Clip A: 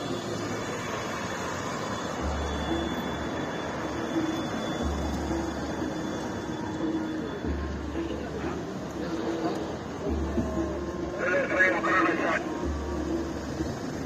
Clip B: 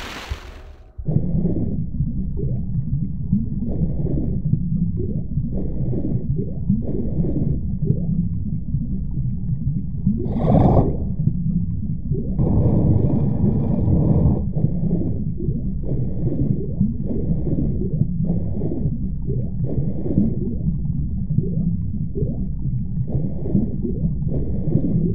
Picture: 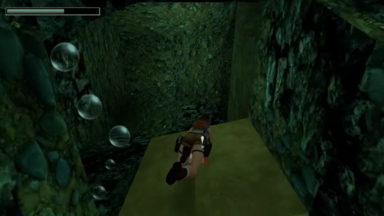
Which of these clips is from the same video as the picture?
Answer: B